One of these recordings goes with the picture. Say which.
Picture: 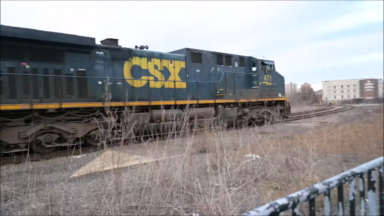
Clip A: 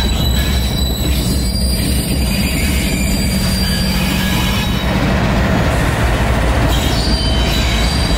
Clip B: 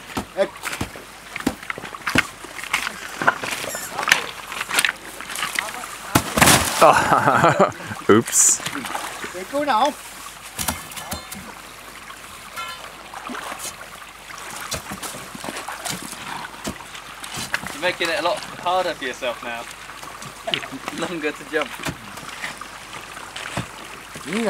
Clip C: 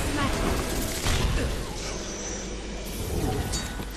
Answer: A